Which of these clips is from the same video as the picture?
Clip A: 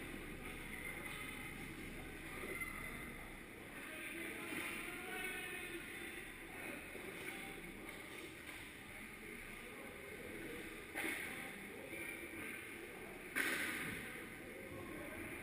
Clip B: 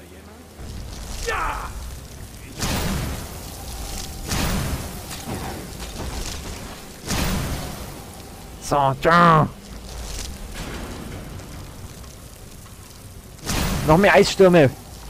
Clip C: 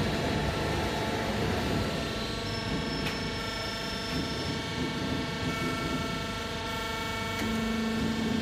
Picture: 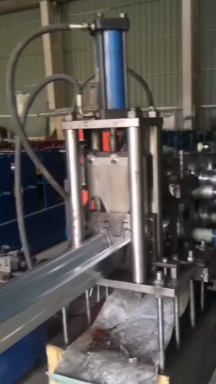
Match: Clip C